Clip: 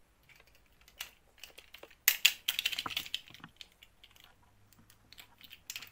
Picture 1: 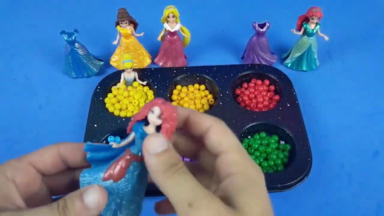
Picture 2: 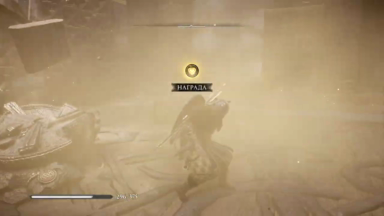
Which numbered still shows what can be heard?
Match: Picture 1